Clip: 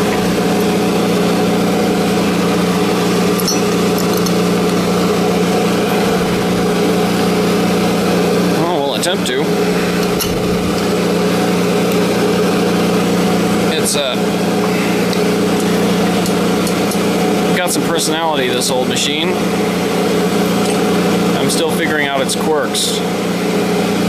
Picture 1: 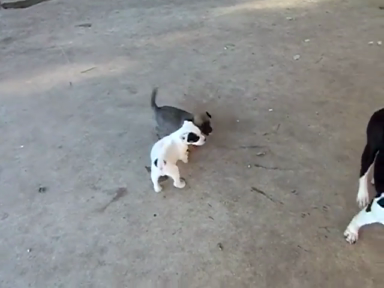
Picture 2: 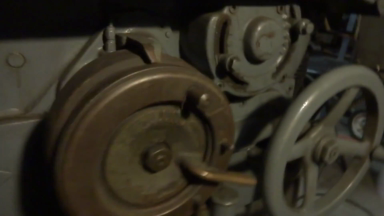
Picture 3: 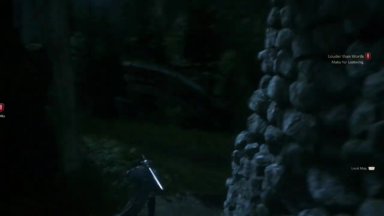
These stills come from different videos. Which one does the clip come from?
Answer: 2